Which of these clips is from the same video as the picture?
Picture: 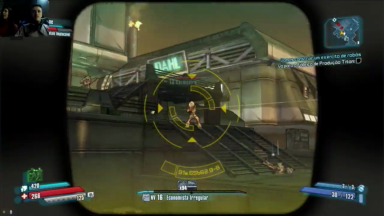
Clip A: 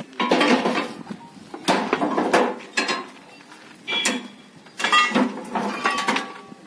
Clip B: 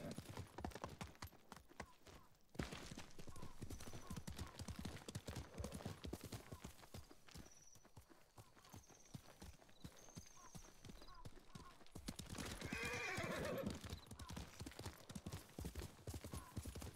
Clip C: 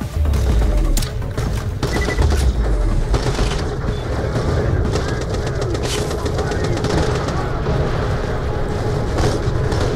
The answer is C